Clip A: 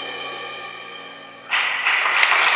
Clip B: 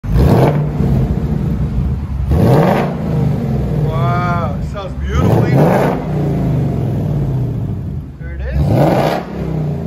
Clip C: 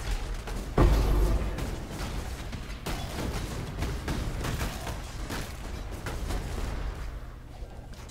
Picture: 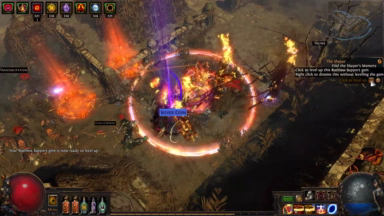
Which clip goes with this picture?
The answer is C